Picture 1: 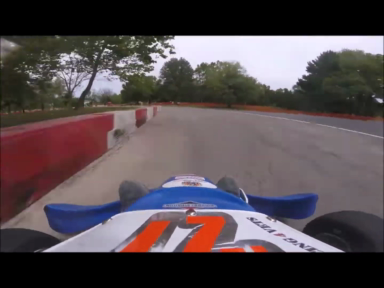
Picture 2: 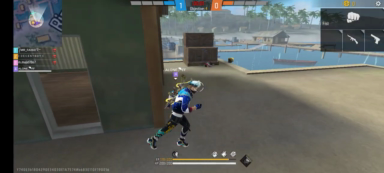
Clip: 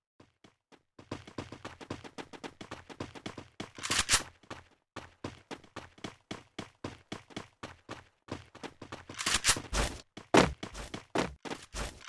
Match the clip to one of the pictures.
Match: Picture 2